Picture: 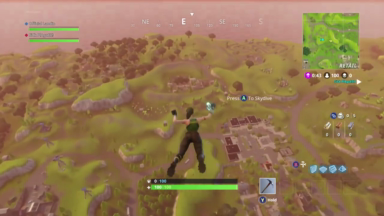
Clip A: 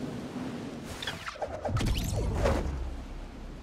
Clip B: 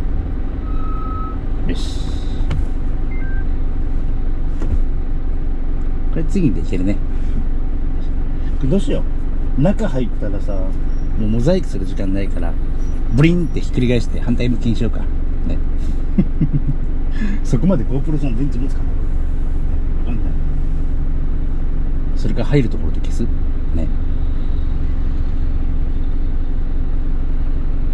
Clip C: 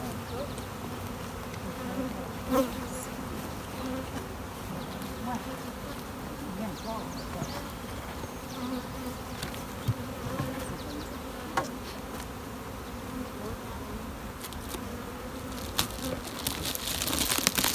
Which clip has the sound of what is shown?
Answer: A